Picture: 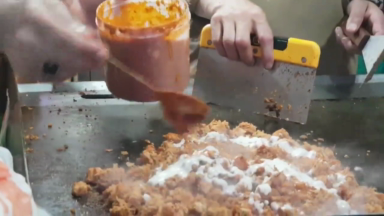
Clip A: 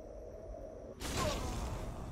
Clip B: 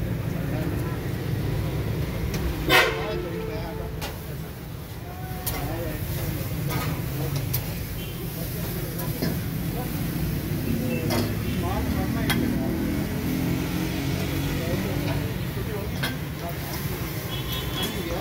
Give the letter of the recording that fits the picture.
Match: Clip B